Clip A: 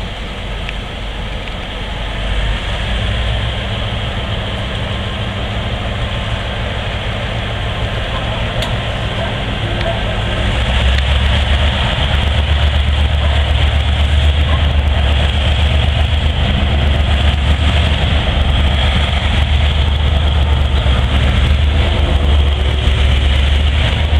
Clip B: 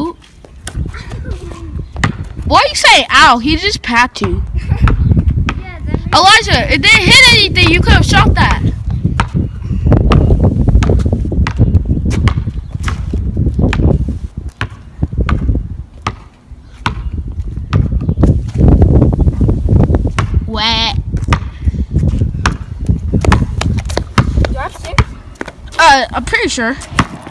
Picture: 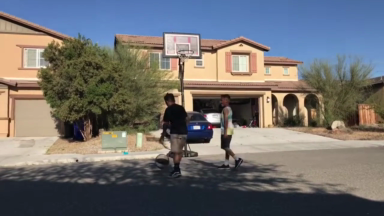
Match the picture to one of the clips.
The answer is B